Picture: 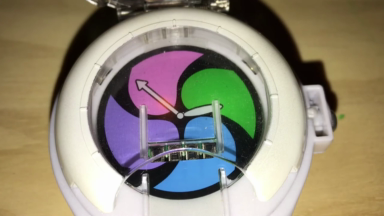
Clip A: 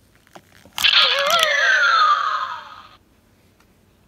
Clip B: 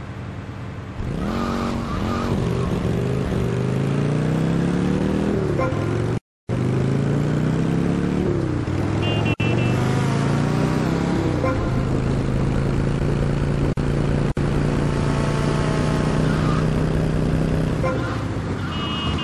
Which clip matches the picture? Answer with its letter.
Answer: A